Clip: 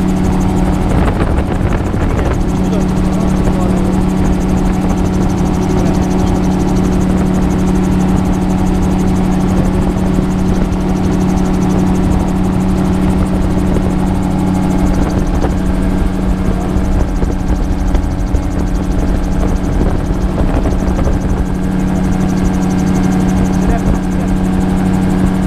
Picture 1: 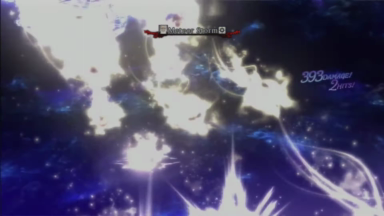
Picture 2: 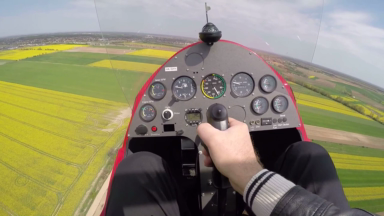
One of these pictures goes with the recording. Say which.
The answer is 2